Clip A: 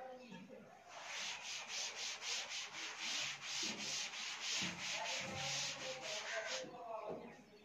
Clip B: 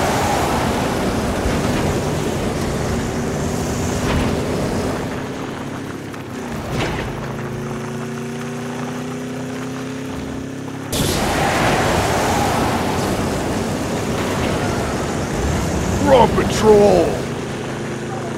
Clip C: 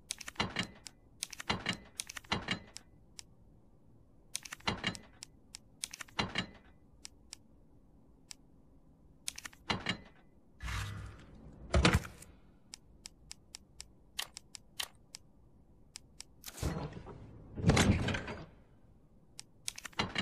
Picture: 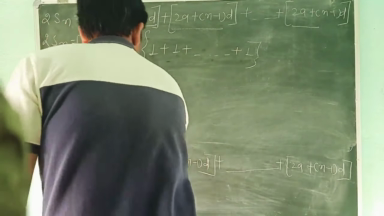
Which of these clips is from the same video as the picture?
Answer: A